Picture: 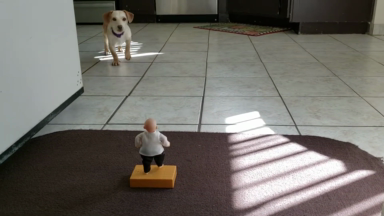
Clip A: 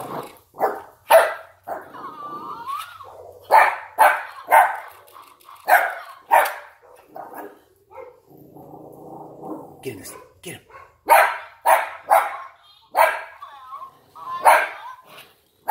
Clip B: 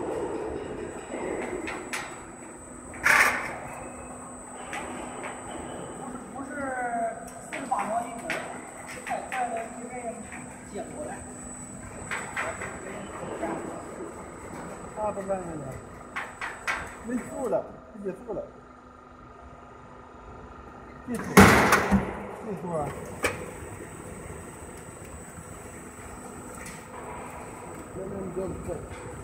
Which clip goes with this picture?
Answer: A